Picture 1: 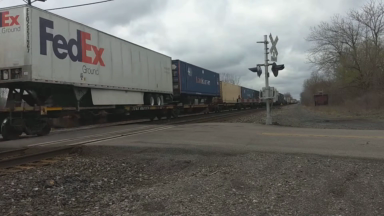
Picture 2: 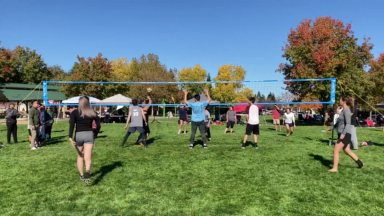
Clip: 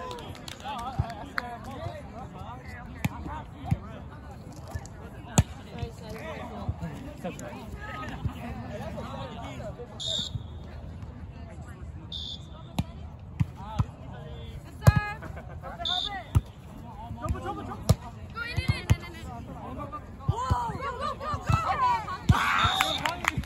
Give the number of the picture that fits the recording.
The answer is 2